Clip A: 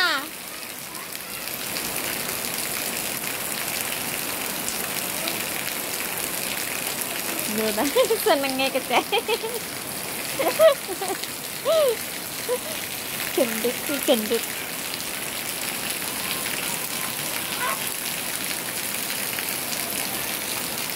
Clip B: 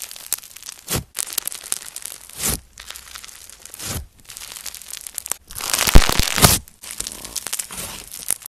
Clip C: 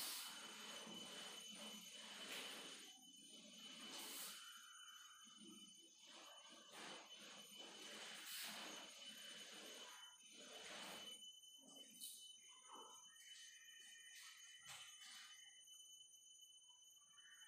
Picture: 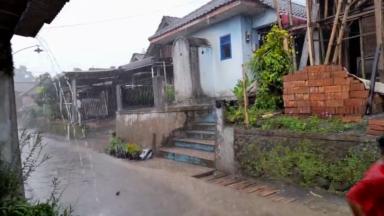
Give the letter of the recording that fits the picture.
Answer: A